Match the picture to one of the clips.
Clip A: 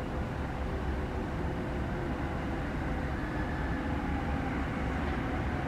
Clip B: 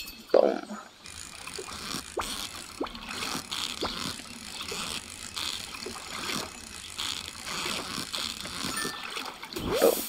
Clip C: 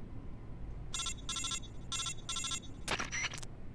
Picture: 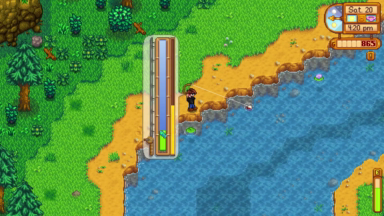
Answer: B